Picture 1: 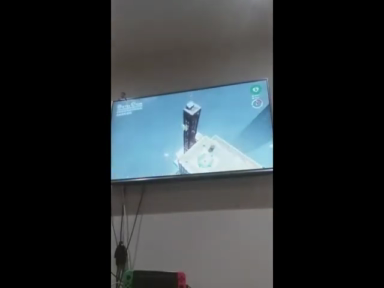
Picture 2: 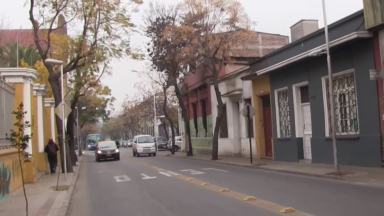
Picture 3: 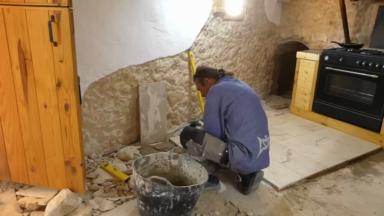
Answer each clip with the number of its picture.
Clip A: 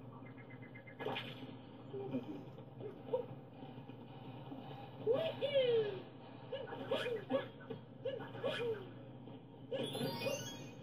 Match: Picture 1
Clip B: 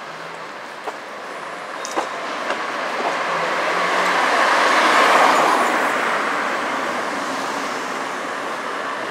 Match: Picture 2